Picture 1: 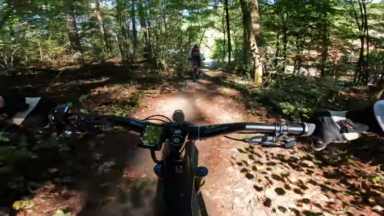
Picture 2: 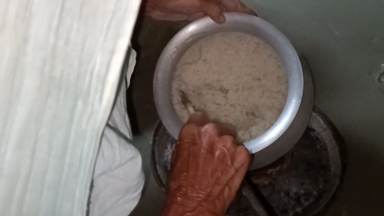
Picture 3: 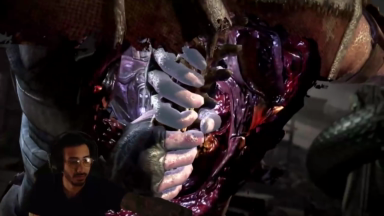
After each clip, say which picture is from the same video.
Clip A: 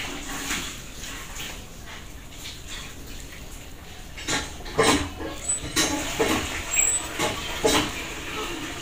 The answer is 2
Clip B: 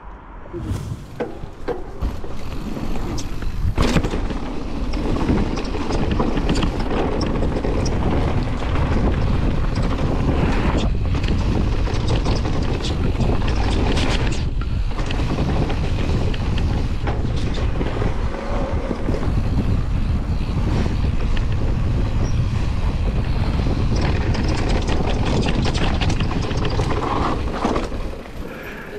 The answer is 1